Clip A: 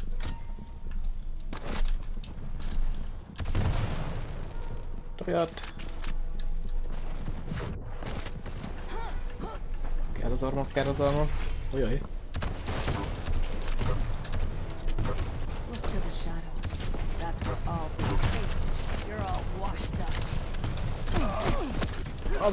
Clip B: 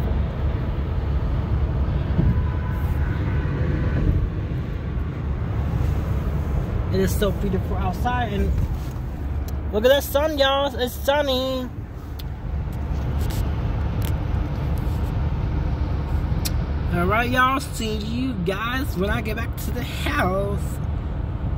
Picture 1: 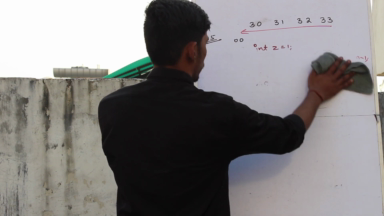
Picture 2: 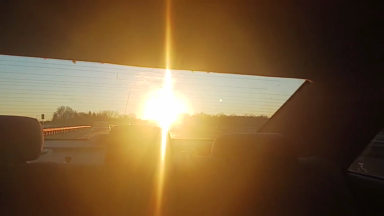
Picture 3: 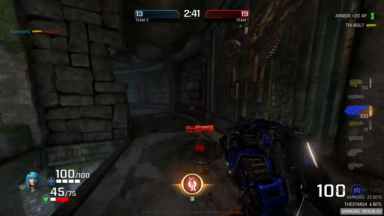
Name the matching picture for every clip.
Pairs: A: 3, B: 2